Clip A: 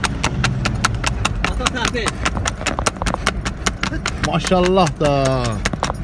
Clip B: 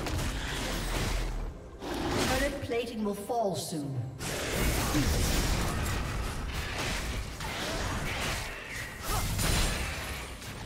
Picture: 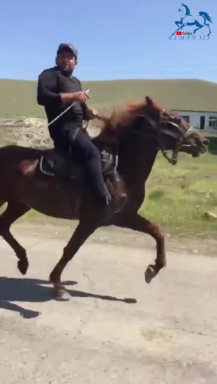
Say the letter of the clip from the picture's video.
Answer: A